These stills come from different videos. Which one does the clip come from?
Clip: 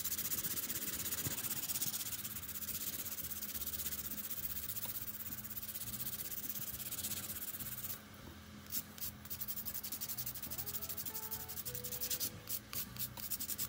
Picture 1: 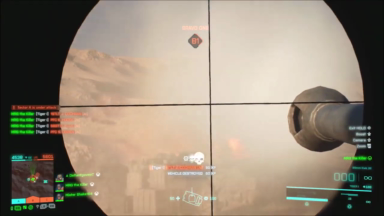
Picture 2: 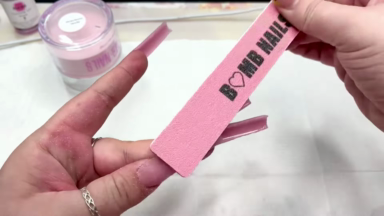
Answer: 2